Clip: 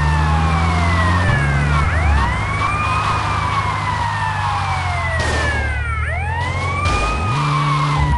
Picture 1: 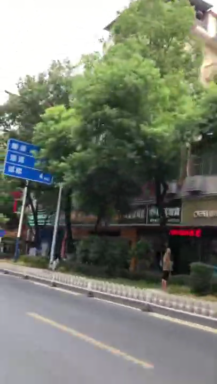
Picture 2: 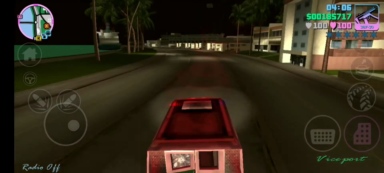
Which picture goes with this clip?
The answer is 2